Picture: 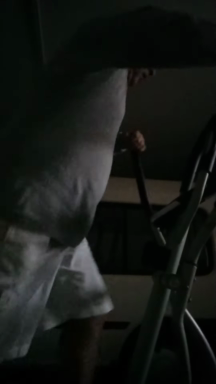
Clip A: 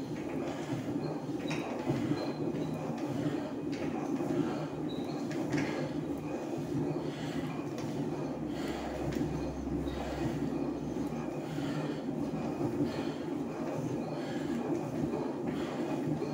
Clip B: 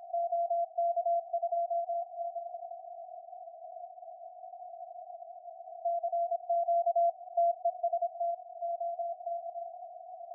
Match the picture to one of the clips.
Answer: A